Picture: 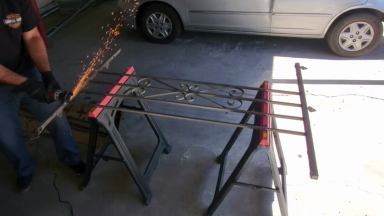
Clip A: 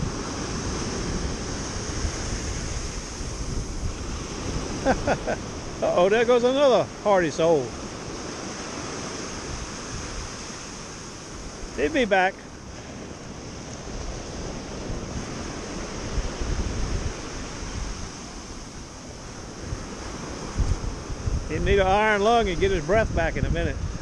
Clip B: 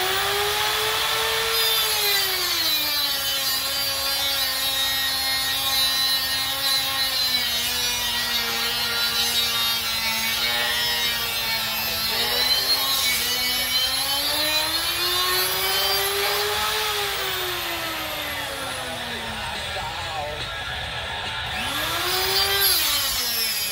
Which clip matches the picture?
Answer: B